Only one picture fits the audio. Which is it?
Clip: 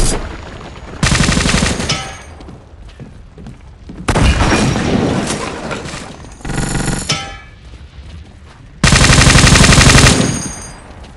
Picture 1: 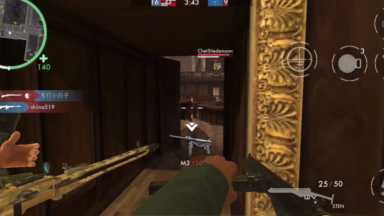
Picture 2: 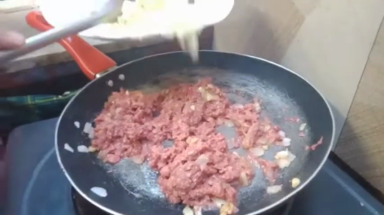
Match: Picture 1